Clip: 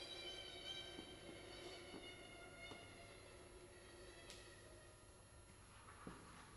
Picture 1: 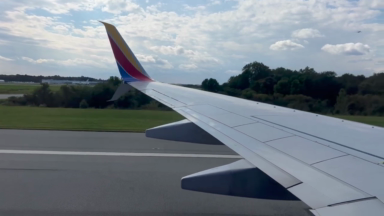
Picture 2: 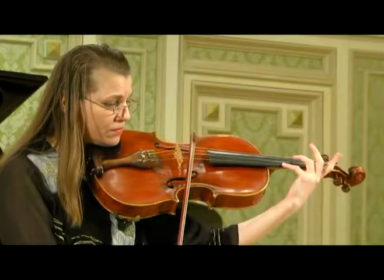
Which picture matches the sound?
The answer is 2